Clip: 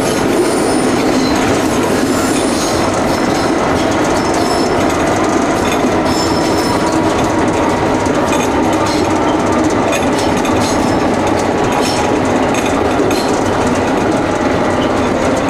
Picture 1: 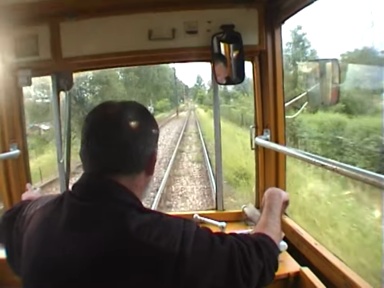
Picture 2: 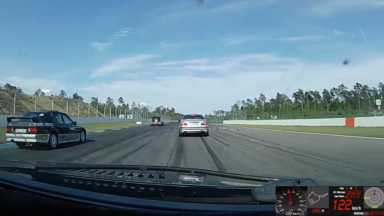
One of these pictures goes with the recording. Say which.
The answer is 1